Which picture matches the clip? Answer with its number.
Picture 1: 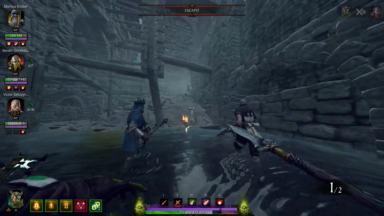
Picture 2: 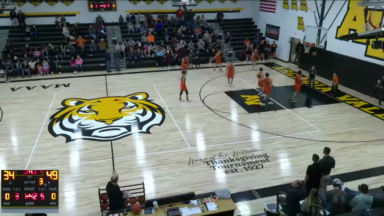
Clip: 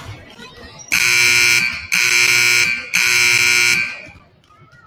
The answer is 2